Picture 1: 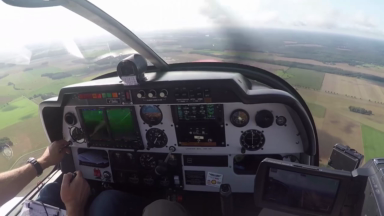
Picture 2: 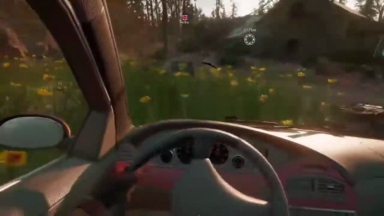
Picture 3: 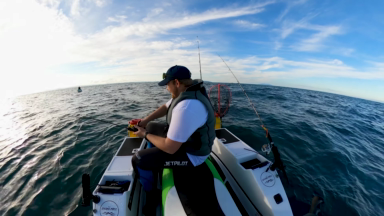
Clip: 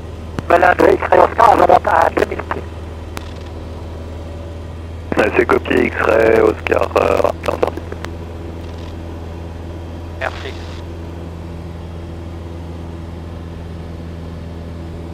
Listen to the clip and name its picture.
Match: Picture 1